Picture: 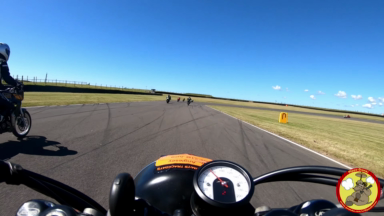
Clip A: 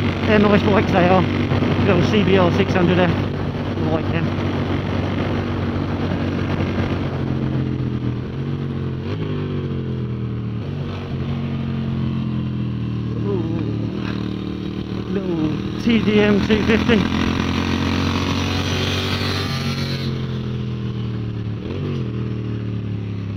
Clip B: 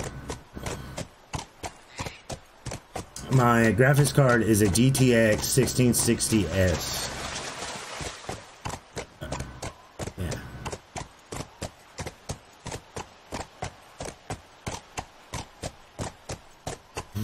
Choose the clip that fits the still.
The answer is A